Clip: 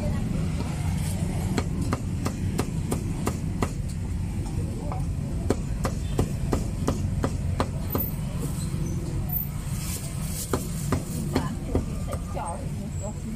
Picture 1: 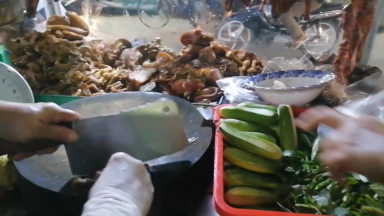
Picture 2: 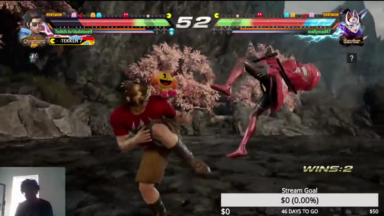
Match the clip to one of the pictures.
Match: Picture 1